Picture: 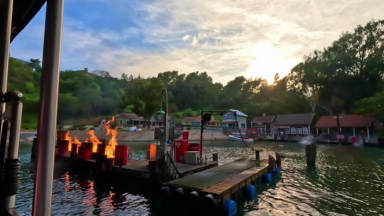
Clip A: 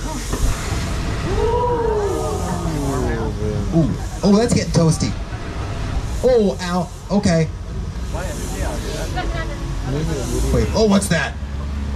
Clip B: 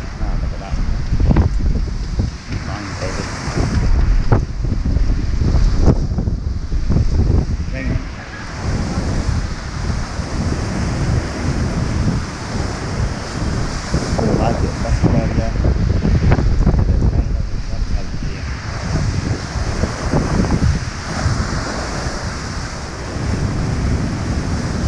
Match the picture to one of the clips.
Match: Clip A